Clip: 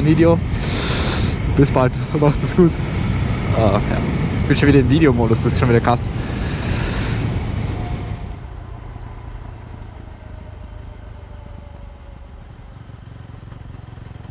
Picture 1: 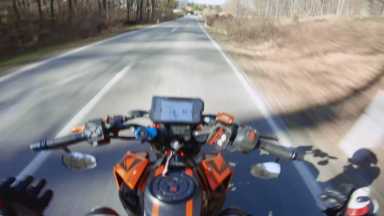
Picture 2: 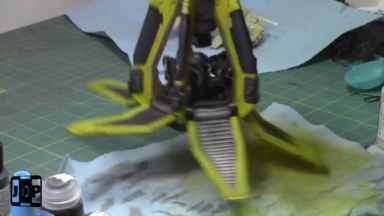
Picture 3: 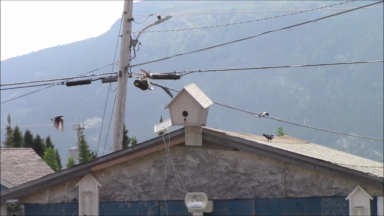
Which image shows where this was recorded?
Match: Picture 1